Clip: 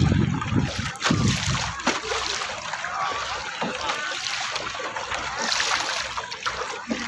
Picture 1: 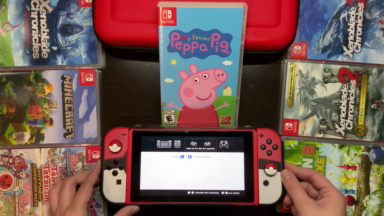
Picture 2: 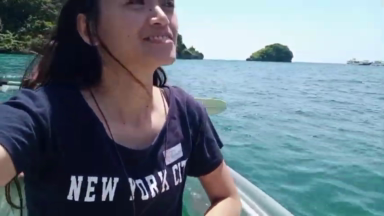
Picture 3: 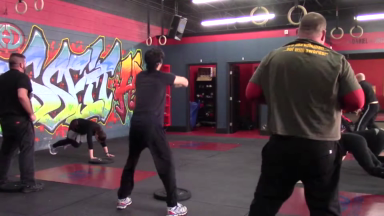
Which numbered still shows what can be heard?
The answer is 2